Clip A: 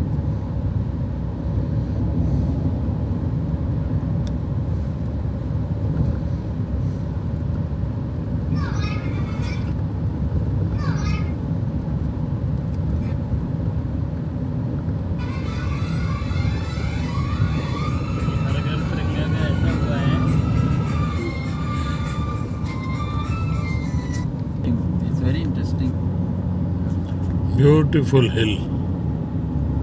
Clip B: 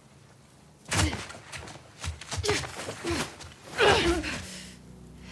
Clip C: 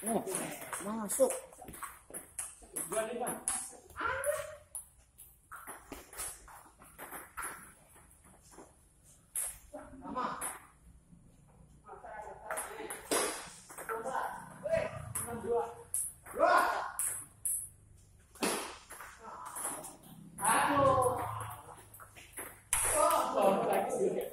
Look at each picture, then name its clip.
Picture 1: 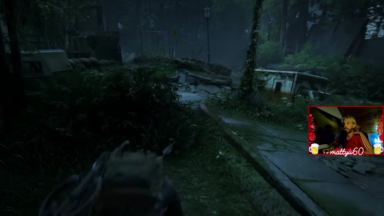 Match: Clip B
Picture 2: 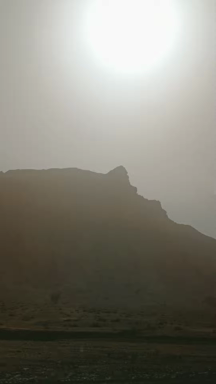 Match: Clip A